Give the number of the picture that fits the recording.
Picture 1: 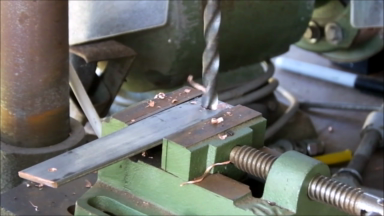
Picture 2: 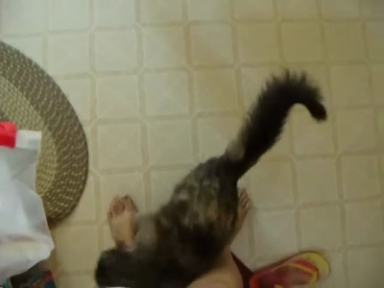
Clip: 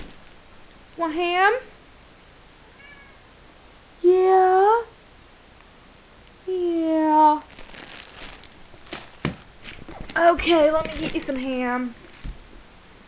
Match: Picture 2